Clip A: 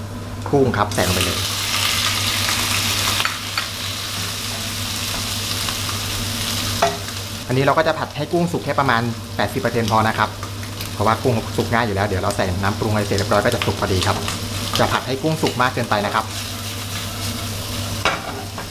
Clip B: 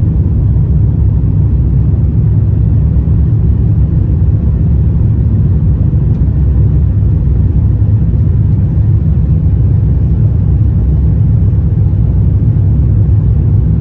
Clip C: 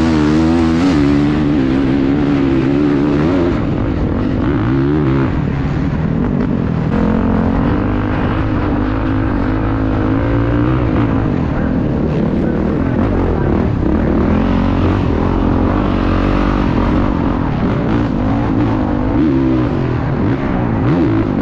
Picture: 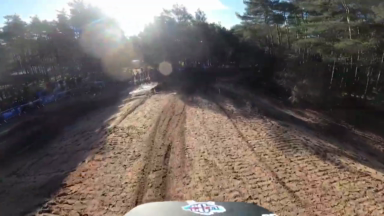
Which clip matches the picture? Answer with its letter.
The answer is C